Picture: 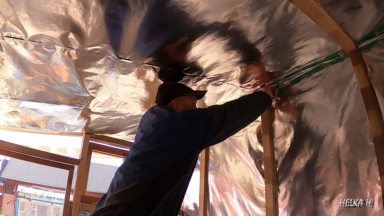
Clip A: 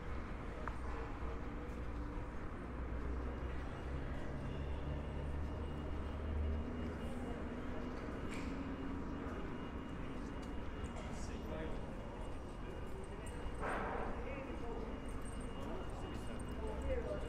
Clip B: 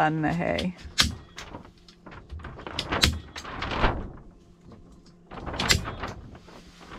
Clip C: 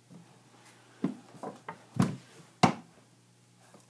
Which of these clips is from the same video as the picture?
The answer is B